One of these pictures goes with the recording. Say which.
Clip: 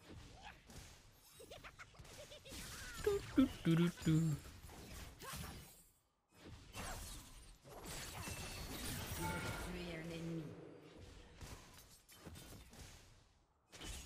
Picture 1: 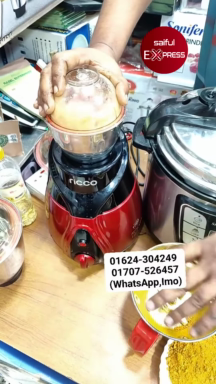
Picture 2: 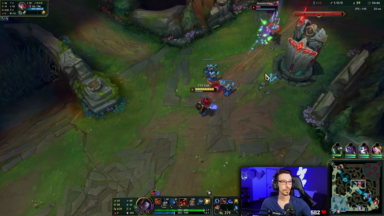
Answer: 2